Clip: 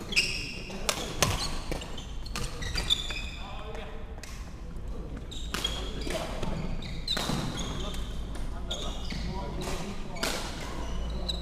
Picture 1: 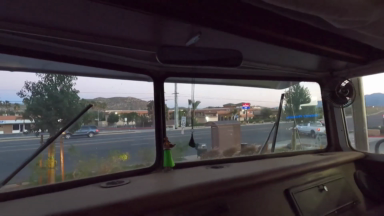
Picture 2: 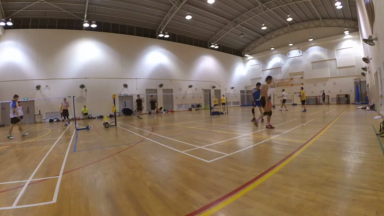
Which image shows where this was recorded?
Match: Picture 2